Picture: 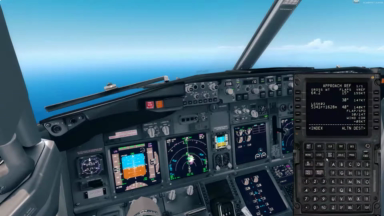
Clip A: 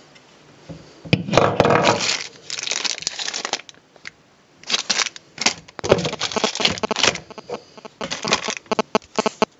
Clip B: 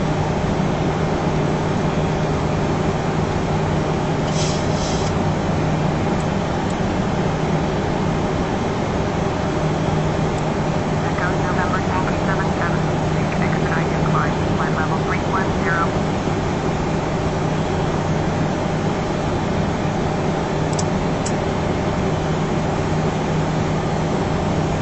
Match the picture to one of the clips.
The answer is B